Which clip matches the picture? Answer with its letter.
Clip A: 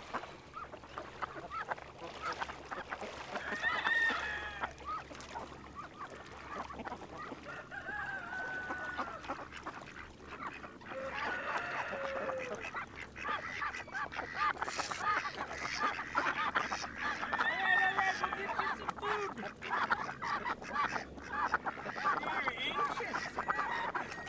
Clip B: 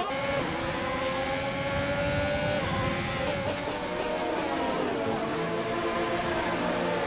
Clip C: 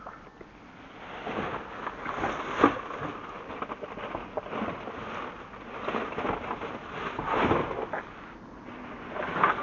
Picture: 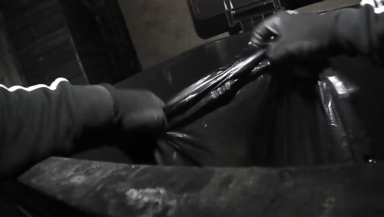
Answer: C